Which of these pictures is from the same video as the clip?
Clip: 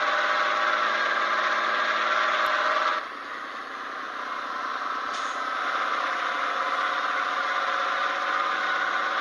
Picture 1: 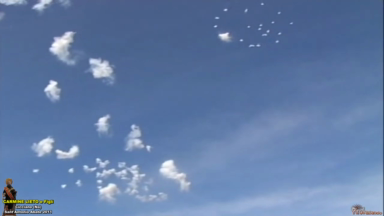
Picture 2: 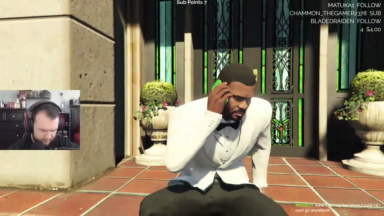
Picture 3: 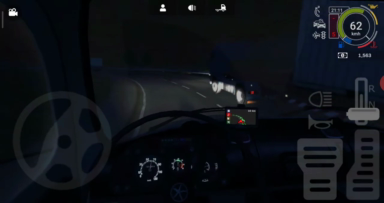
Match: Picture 3